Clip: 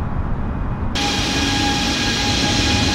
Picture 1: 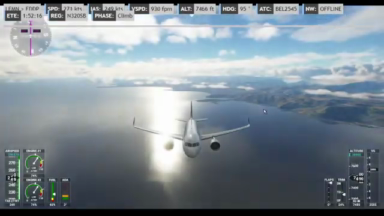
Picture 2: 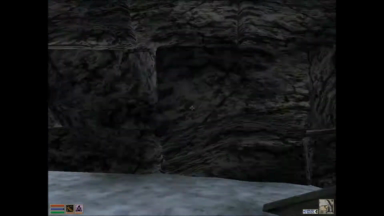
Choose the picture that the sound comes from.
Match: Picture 1